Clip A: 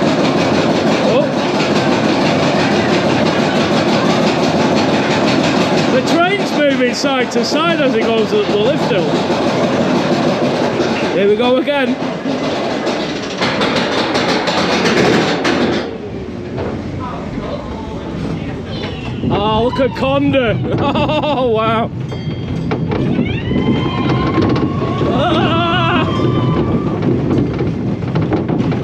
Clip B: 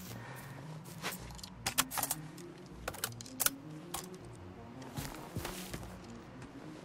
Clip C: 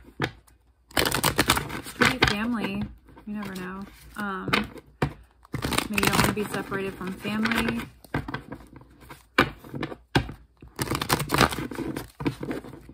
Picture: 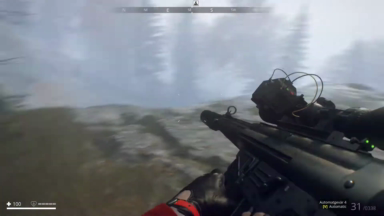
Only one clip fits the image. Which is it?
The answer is B